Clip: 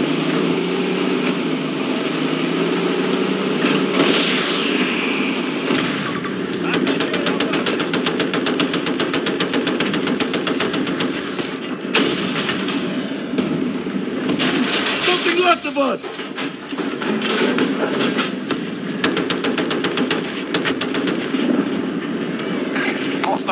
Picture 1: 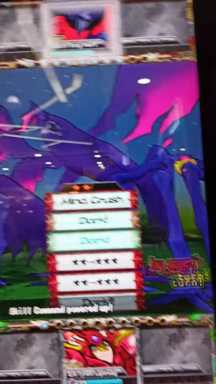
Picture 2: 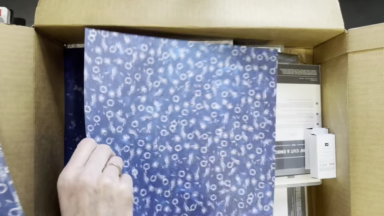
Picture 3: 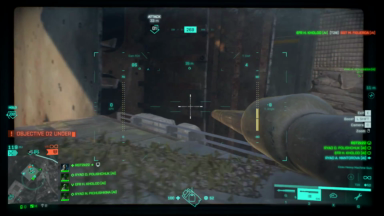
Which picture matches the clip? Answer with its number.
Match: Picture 3